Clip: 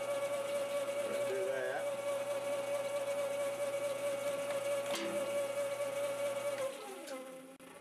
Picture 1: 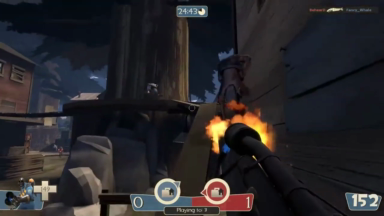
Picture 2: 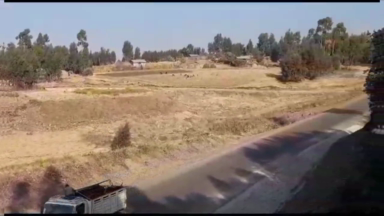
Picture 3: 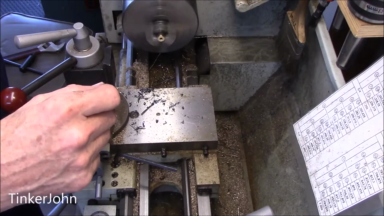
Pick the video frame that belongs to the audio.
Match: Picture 3